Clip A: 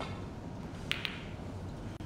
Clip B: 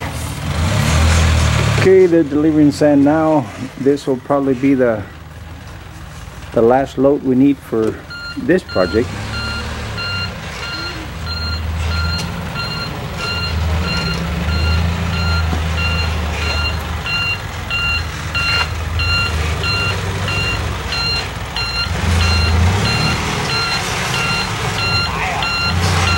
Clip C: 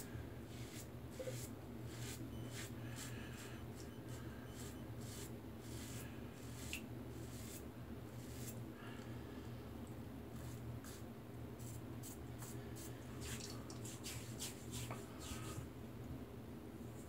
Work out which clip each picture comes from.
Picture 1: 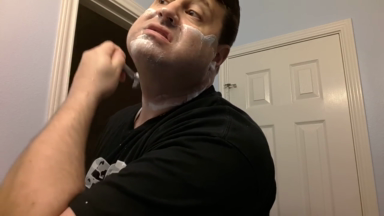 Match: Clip C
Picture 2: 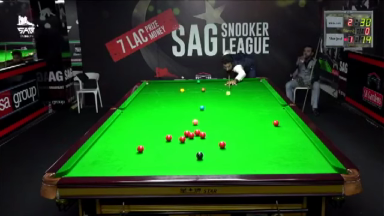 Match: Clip A